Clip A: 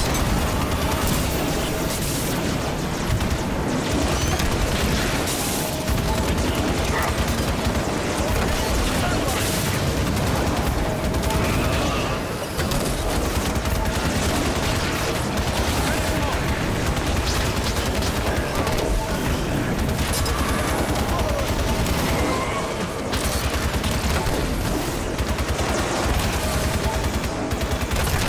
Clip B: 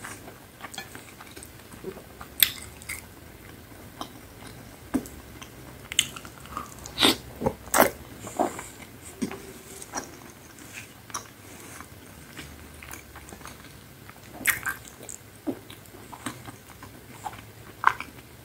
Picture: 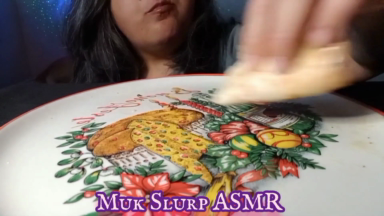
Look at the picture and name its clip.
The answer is B